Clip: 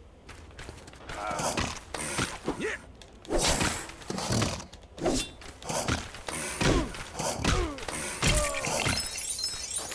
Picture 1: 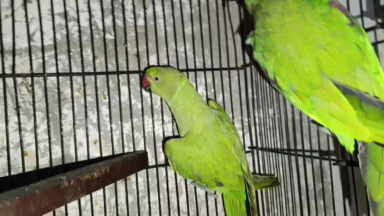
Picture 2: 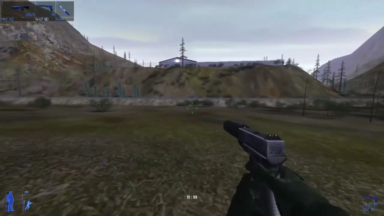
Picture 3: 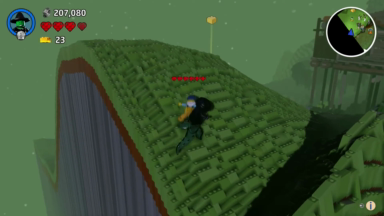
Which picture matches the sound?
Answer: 3